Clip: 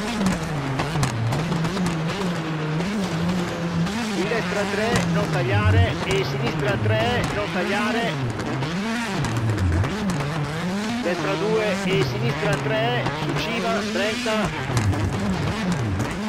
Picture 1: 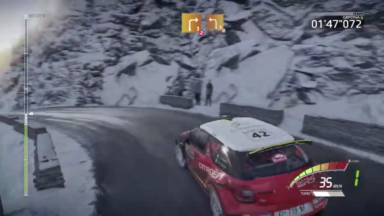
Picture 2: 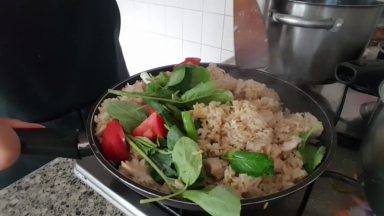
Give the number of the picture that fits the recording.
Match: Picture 1